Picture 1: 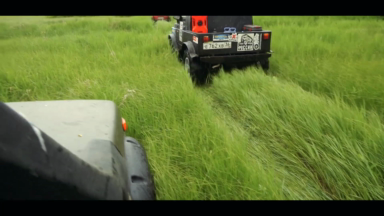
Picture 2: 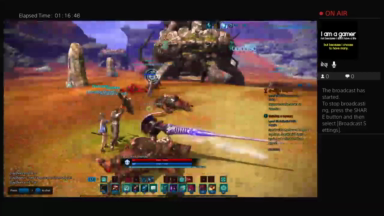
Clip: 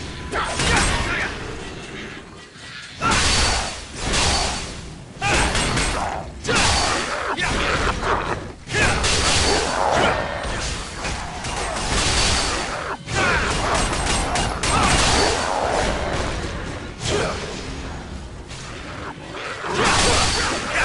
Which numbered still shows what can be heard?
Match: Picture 2